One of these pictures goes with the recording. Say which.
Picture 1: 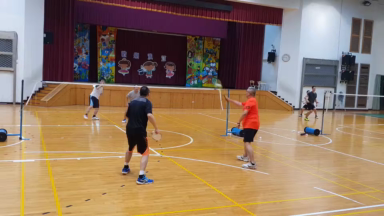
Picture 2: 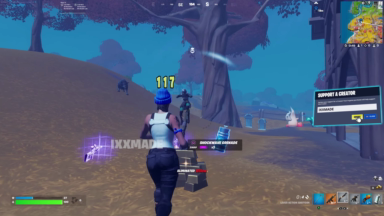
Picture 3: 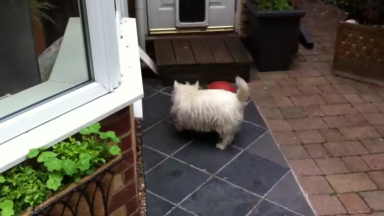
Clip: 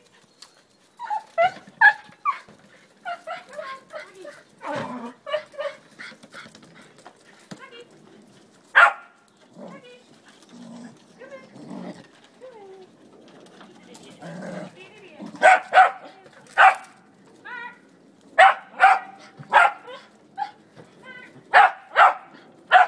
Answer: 3